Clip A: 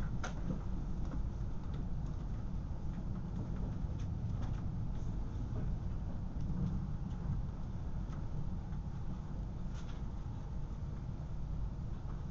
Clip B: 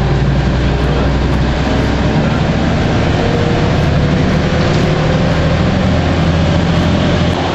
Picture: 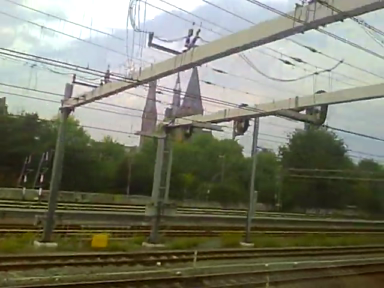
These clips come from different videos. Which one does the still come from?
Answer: A